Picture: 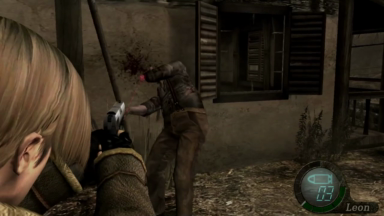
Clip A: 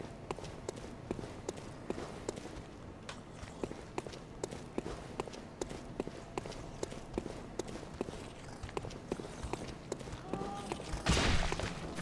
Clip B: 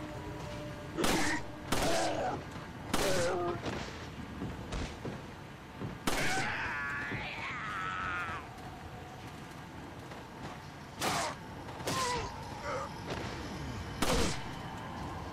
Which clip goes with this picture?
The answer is B